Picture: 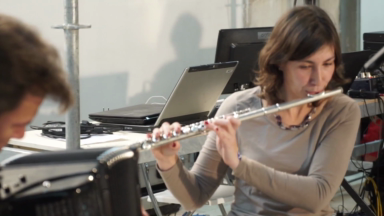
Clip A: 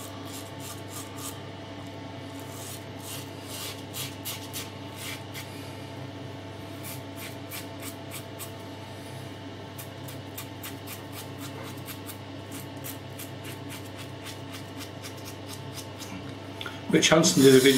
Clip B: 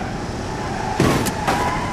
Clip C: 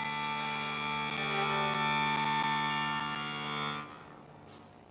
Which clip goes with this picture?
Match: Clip C